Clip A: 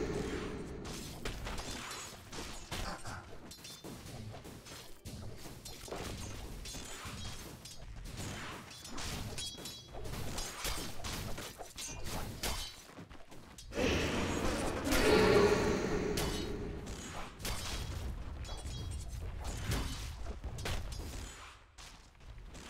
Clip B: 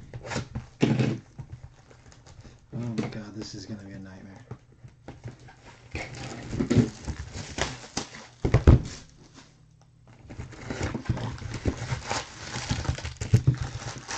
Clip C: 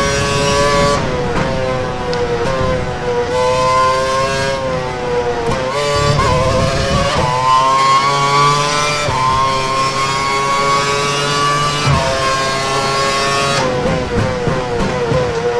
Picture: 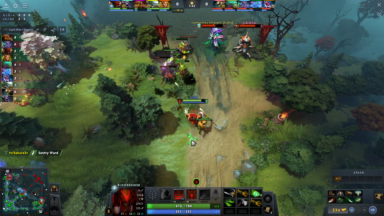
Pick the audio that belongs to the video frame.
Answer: A